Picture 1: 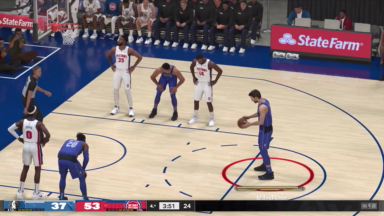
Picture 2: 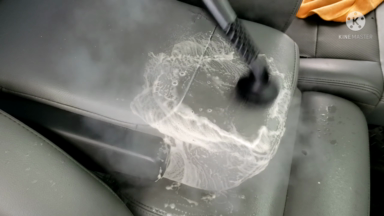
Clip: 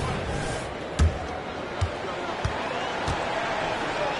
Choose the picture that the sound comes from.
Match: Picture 1